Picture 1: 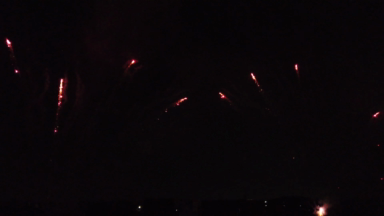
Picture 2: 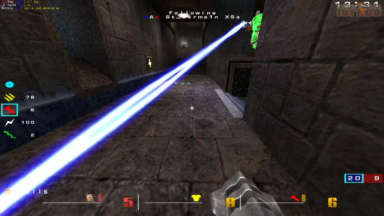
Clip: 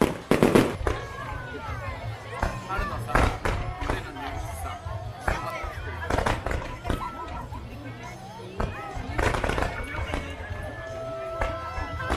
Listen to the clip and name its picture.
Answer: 1